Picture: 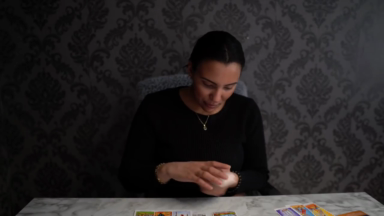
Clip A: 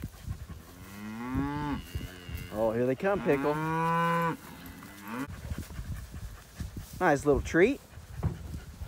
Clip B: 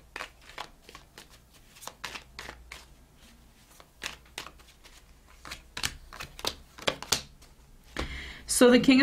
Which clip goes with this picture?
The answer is B